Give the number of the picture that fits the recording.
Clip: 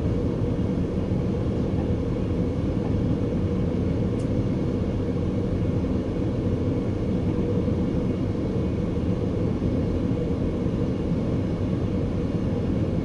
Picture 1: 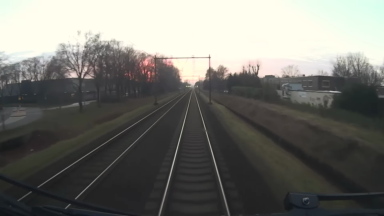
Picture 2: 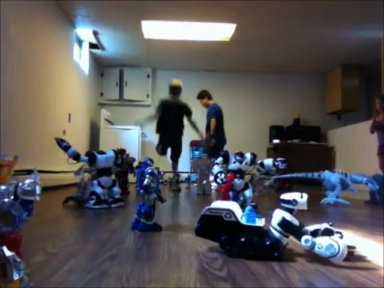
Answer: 1